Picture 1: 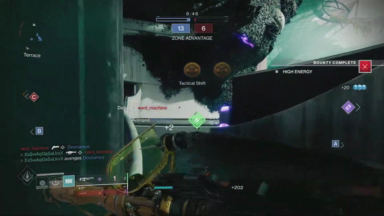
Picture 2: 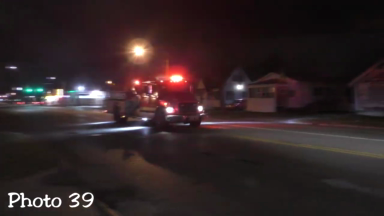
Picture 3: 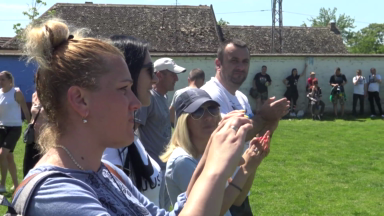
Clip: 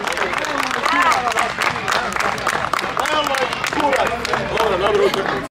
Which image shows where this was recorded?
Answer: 3